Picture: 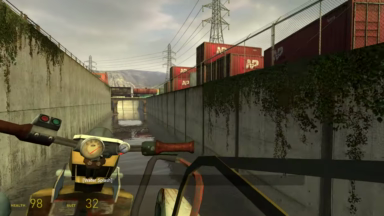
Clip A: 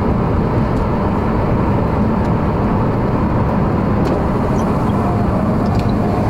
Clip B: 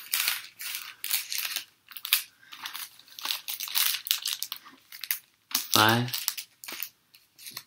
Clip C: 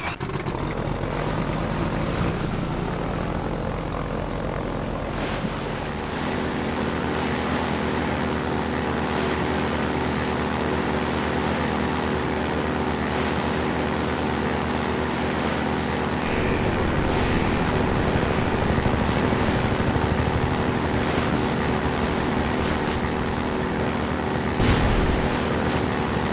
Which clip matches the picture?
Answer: C